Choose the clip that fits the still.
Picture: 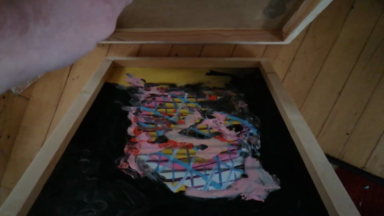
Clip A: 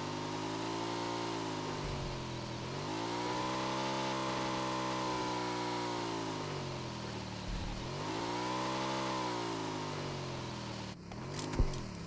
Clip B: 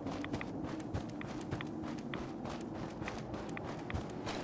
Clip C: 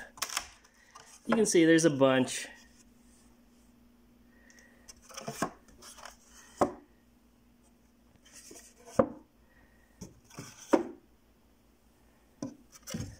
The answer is C